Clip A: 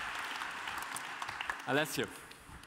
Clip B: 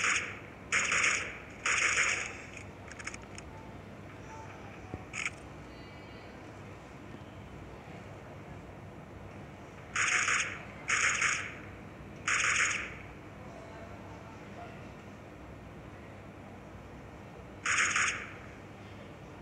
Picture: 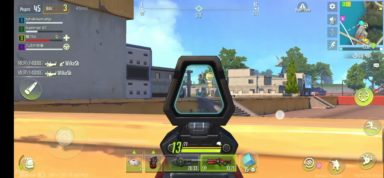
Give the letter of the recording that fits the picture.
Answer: B